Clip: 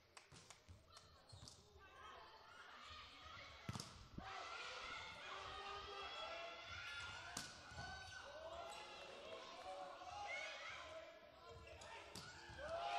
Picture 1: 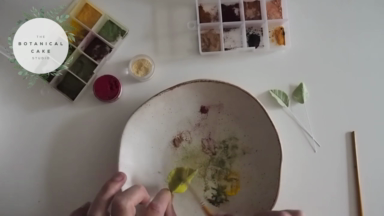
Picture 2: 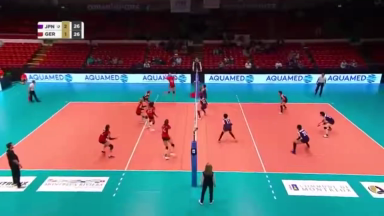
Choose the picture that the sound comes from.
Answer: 2